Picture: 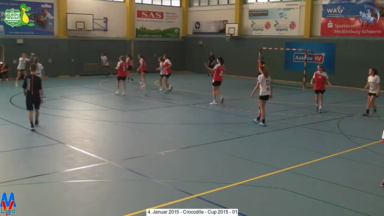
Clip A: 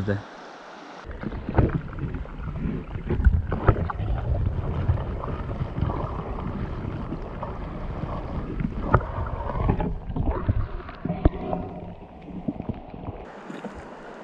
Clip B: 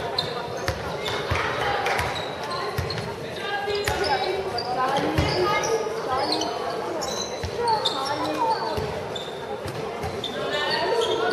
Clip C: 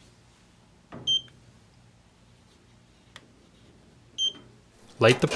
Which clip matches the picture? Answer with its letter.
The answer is B